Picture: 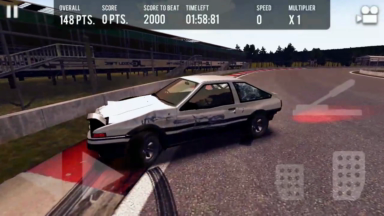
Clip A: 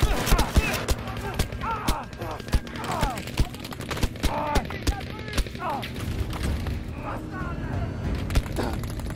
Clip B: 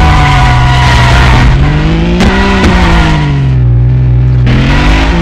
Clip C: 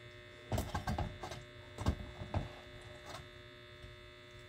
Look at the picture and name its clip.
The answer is B